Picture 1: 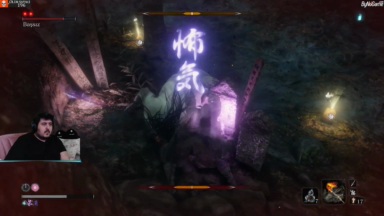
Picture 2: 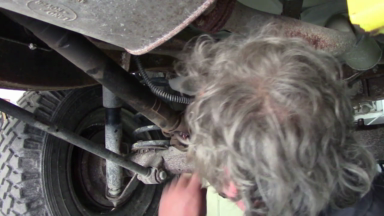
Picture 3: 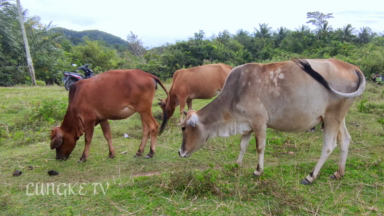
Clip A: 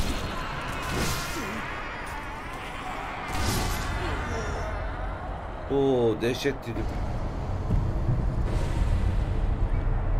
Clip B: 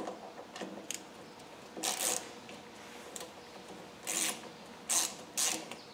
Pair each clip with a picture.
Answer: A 1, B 2